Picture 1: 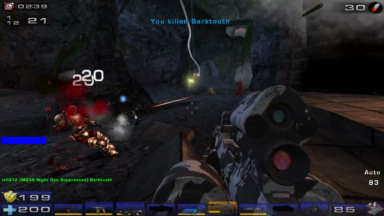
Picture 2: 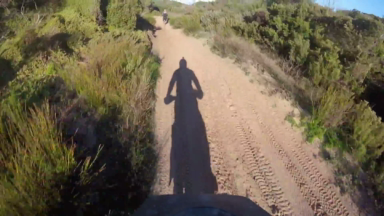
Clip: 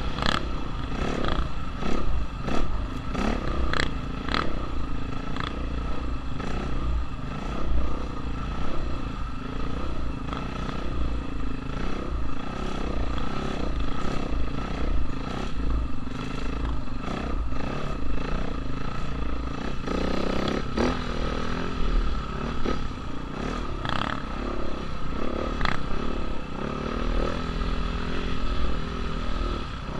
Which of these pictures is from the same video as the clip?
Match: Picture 2